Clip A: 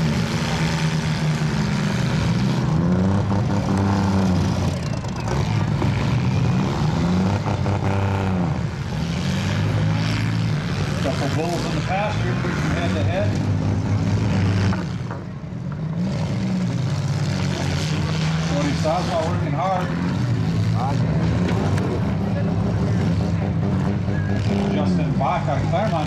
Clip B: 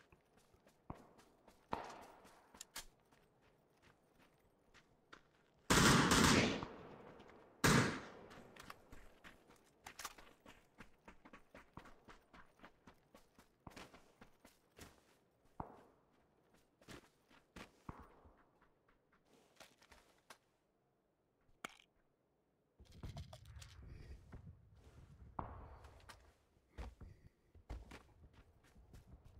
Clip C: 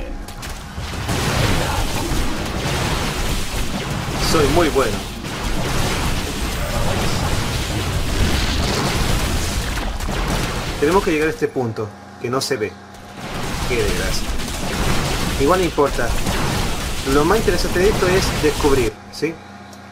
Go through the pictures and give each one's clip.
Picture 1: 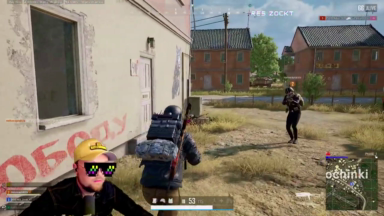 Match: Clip B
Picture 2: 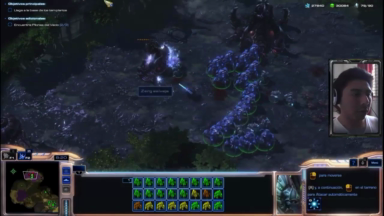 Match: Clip C